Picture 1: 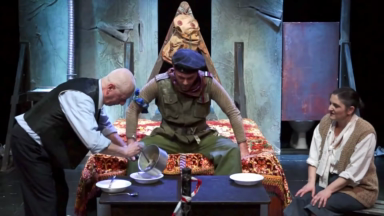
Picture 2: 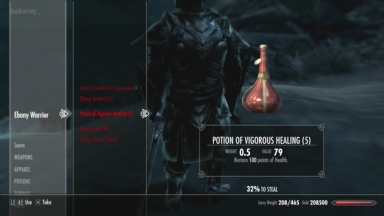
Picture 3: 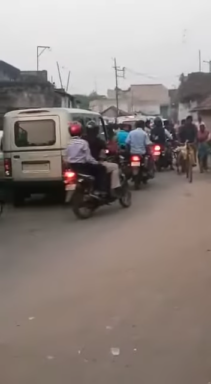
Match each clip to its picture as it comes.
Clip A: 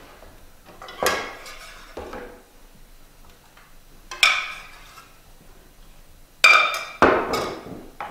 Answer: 1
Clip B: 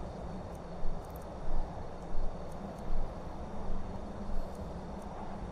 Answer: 2